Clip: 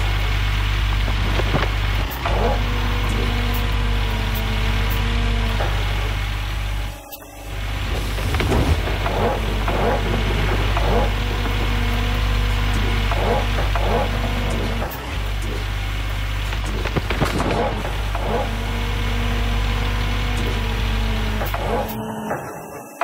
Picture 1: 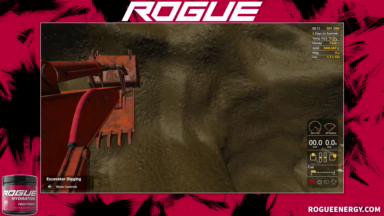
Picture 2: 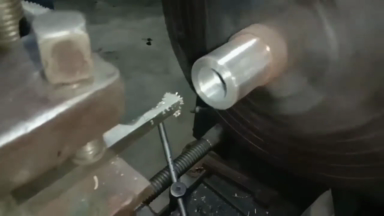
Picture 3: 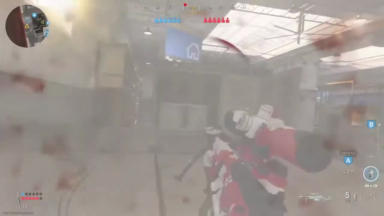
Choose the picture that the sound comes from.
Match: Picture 1